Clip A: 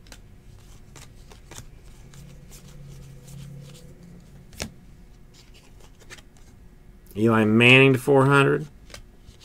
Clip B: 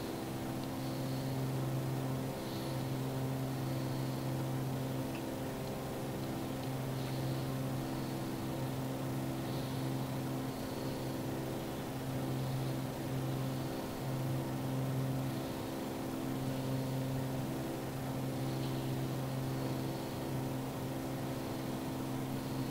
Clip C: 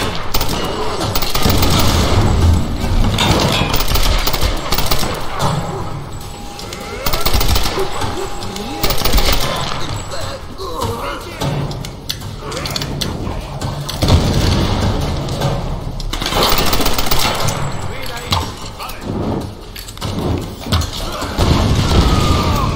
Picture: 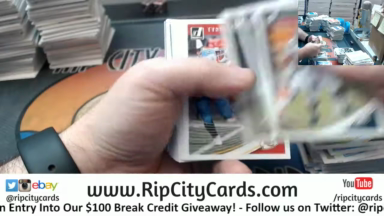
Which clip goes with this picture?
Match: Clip A